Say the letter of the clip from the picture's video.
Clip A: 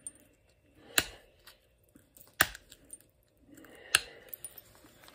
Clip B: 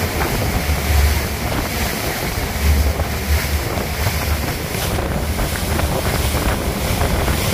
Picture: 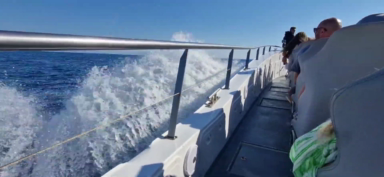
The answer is B